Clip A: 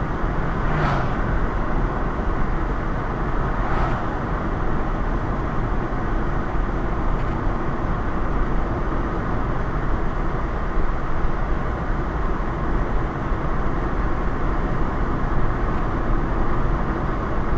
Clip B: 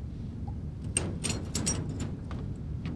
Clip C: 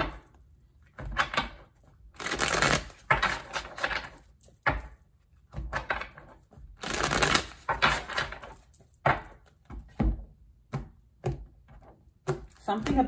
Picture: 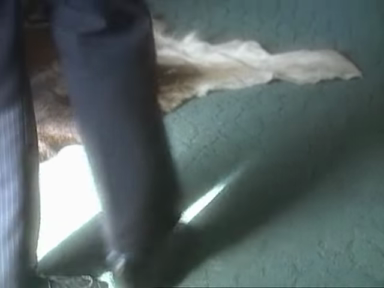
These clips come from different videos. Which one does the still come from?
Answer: B